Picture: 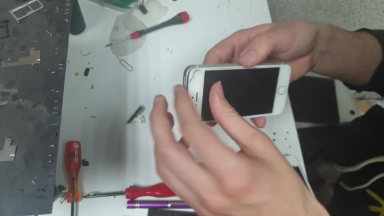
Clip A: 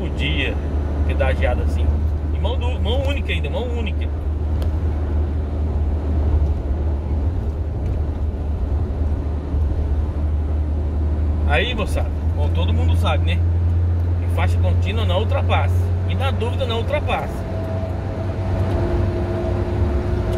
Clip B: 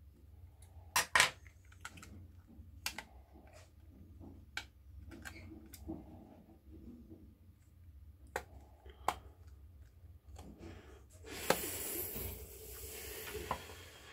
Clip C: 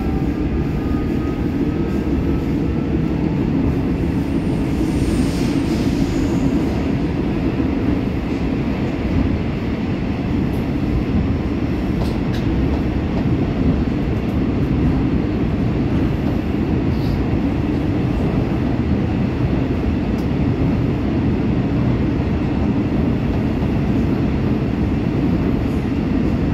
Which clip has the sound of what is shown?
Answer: B